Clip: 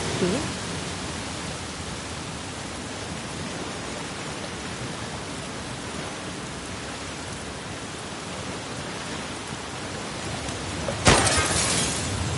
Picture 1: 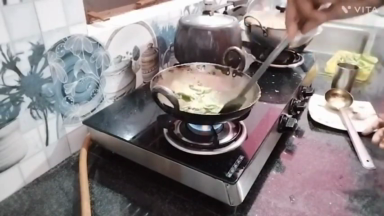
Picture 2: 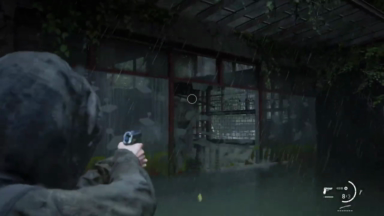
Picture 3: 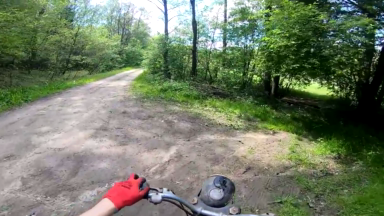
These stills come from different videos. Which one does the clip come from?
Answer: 2